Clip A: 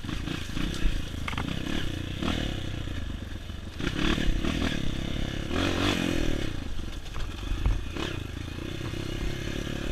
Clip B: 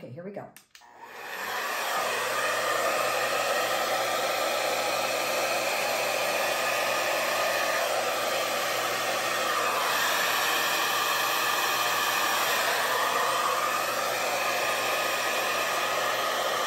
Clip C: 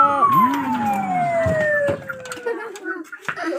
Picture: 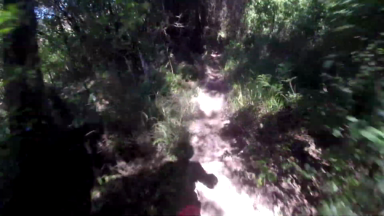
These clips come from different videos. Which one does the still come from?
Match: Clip A